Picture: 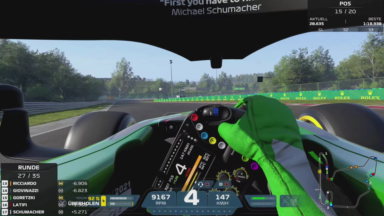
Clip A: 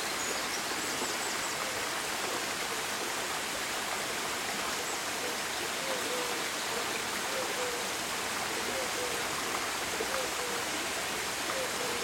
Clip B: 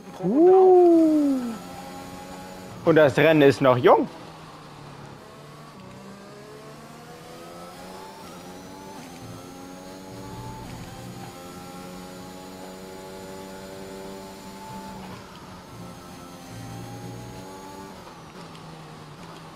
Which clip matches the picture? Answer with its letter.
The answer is B